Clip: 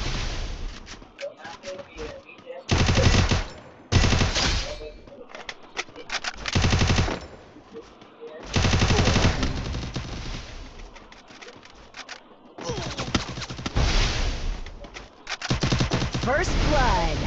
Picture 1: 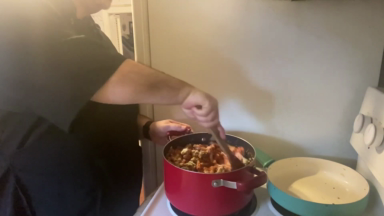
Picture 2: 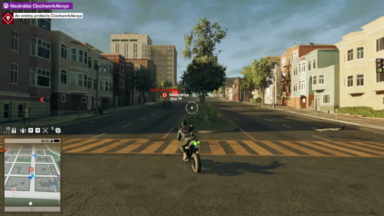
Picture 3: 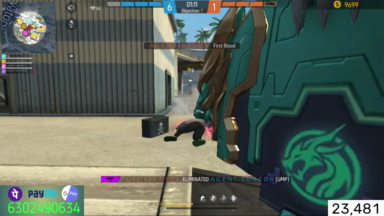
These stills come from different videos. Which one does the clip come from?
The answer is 3